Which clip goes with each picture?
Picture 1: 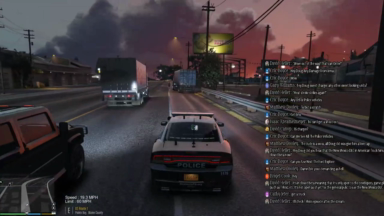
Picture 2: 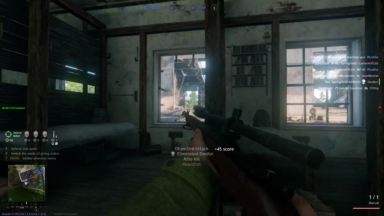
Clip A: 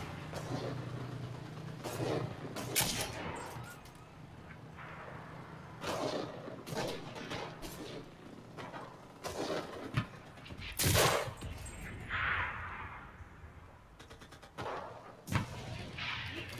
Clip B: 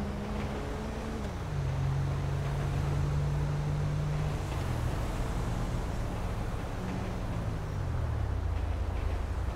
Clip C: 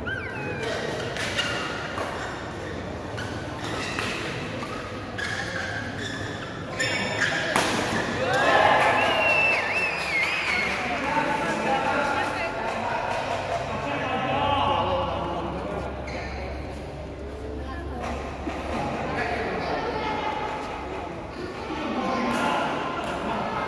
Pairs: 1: B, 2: A